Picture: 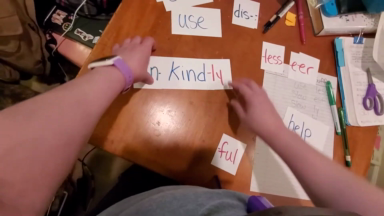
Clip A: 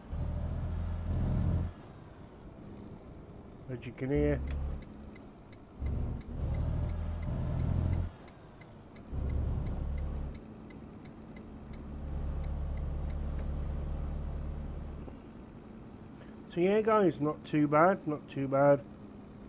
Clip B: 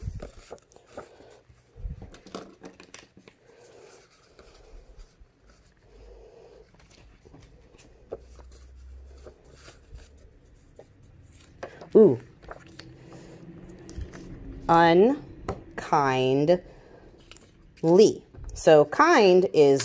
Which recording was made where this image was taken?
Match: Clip B